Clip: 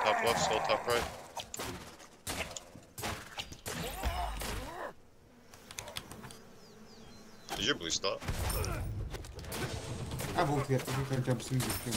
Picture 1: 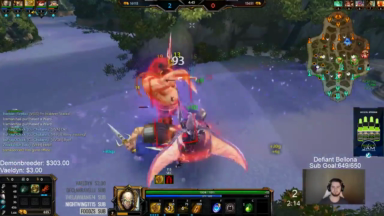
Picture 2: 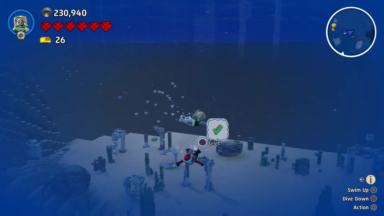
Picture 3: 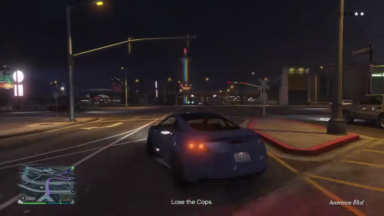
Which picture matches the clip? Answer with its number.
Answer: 1